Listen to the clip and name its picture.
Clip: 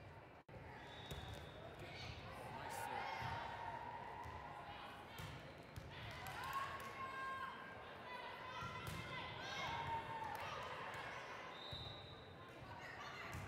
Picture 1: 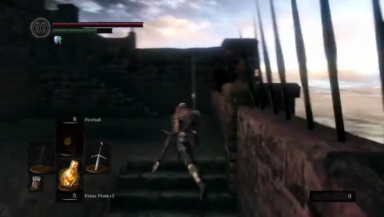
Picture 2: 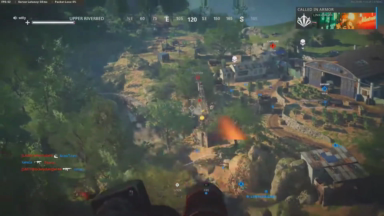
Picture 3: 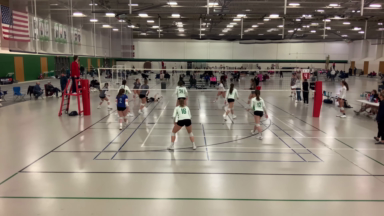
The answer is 3